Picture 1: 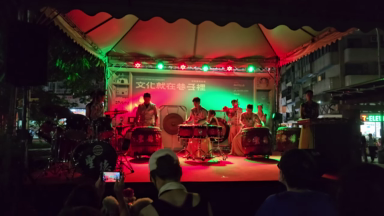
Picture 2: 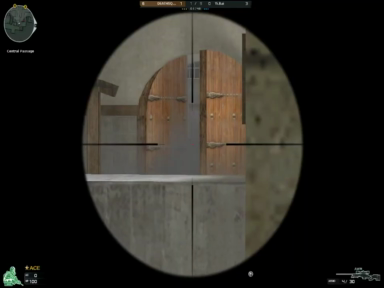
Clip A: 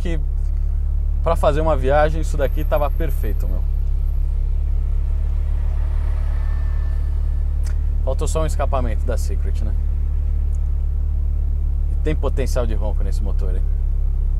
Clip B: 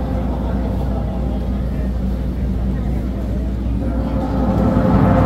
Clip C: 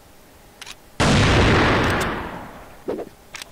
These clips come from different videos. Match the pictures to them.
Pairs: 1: B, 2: C